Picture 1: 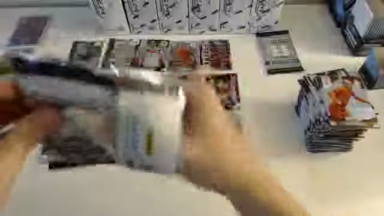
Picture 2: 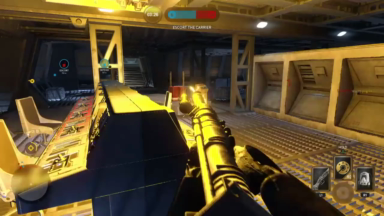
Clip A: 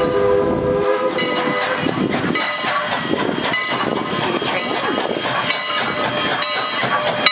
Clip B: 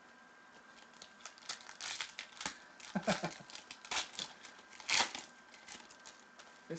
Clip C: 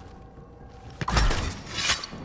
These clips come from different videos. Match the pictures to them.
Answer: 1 B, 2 C